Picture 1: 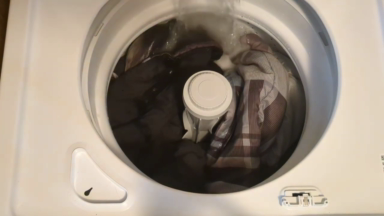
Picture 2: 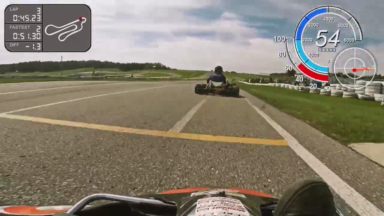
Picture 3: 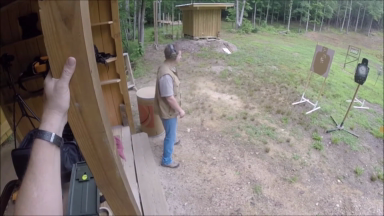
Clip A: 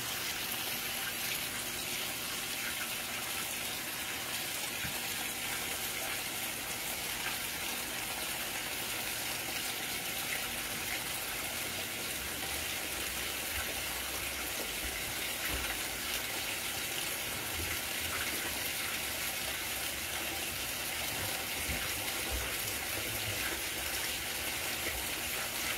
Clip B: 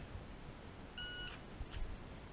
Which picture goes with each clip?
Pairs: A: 1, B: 3